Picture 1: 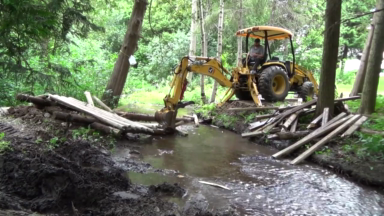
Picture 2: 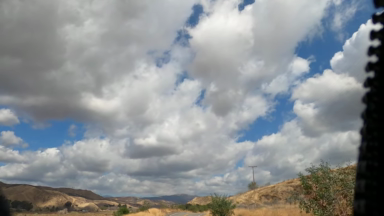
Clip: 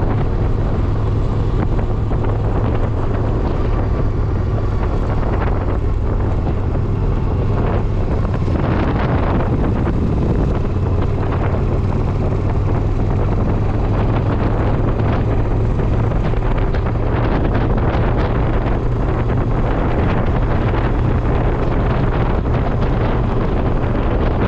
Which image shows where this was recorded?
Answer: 2